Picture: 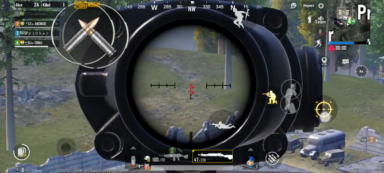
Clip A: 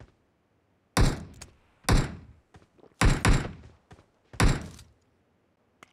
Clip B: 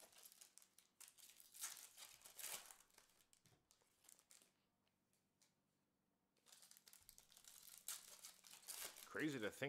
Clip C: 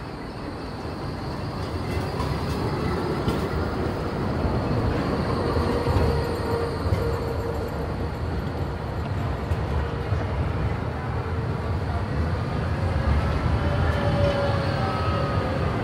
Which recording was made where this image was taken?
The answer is A